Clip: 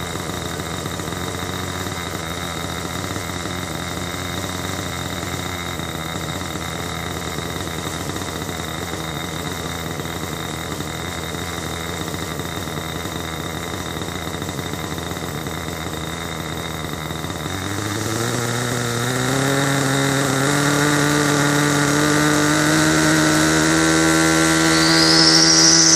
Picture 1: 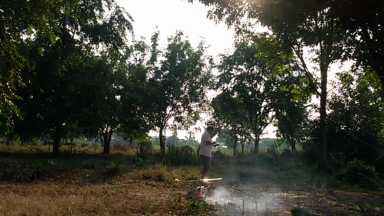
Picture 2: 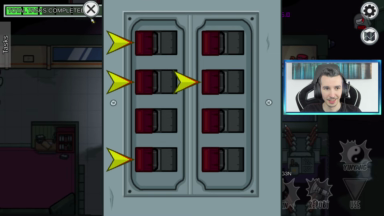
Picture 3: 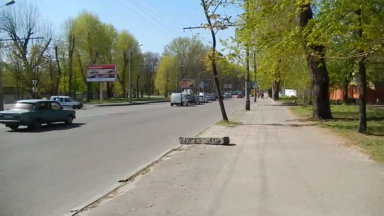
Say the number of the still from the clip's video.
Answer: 1